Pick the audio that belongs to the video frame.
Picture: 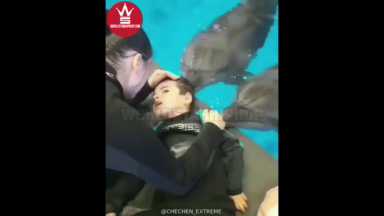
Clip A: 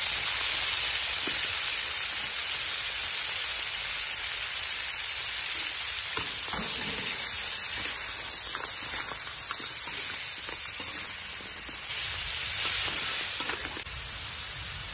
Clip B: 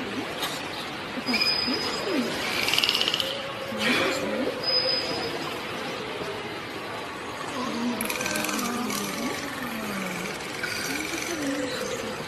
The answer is B